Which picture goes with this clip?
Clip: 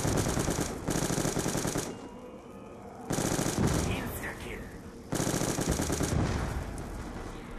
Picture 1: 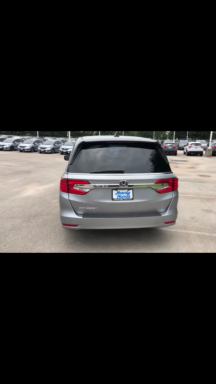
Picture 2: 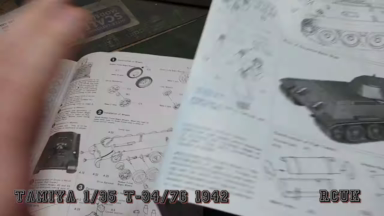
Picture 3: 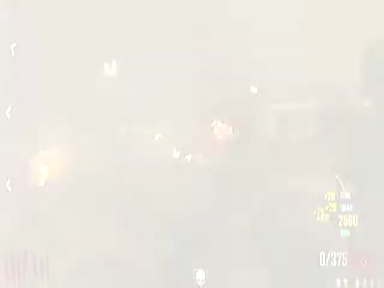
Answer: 3